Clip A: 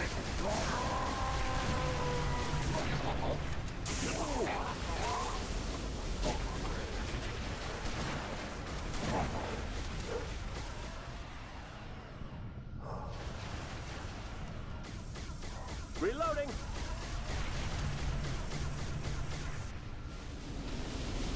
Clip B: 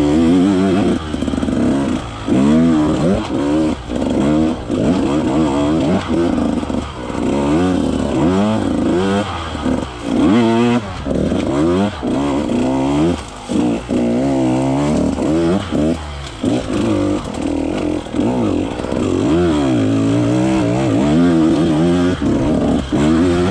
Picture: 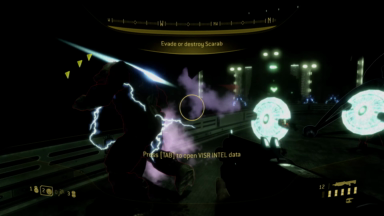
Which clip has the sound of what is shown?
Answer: A